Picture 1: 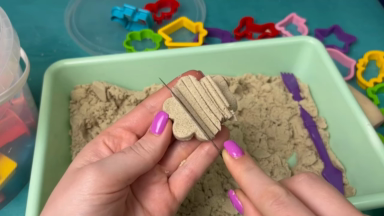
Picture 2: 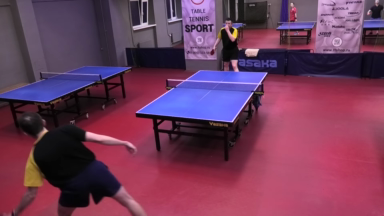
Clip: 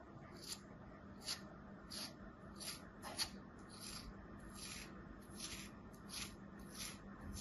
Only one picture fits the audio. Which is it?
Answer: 1